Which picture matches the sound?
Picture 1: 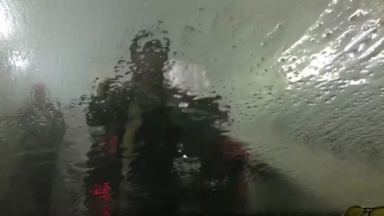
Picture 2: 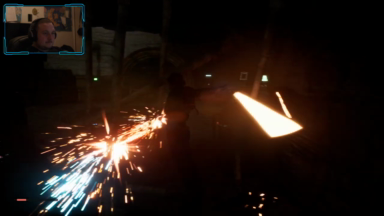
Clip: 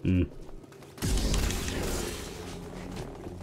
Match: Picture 2